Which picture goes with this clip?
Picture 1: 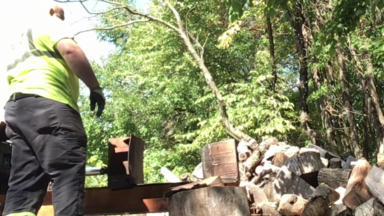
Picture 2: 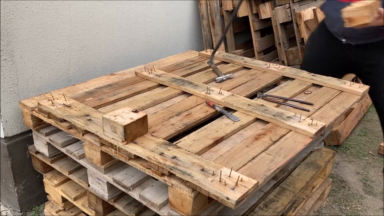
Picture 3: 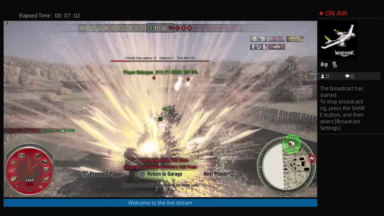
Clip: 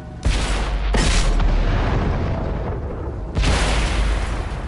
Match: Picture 3